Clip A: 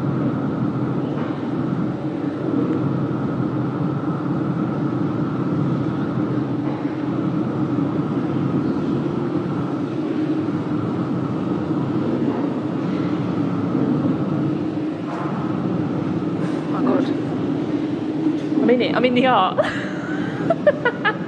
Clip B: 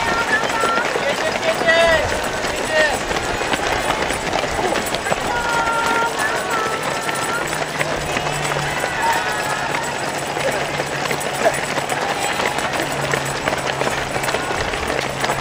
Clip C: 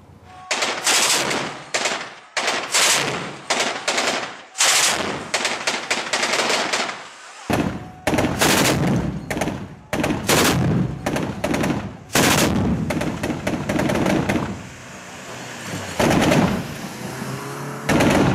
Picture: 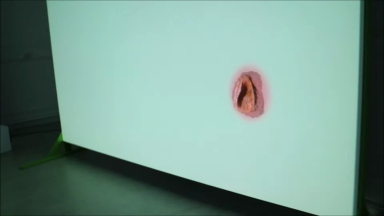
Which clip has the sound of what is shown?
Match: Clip A